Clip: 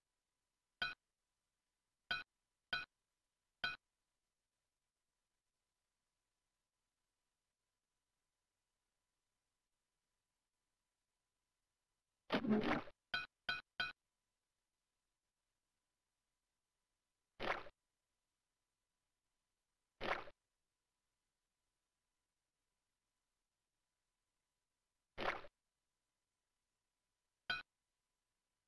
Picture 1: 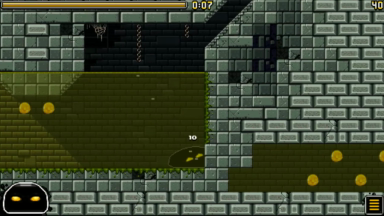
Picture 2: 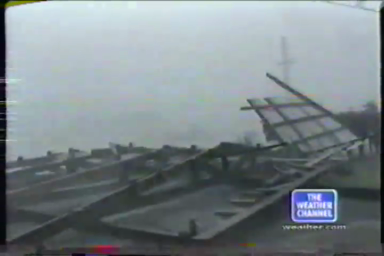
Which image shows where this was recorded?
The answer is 1